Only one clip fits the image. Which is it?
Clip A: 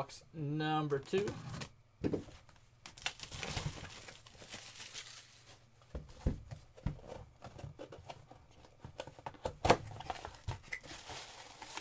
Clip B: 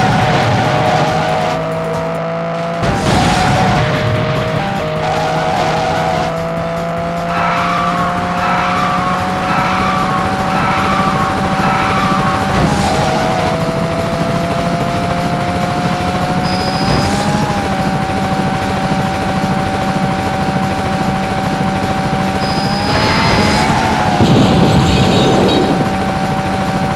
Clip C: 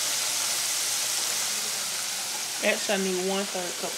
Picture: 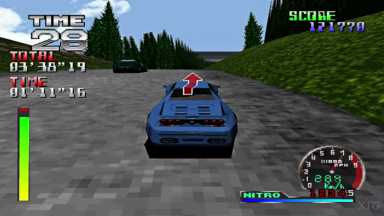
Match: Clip B